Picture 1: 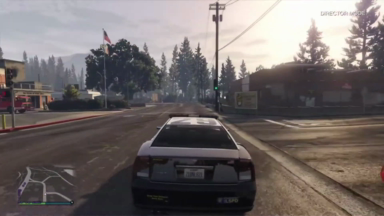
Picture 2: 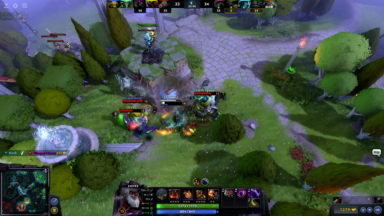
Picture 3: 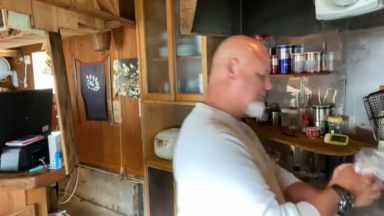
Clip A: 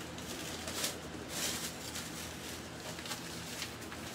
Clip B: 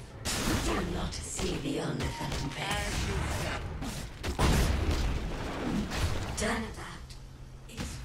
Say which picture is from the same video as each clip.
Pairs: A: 3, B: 2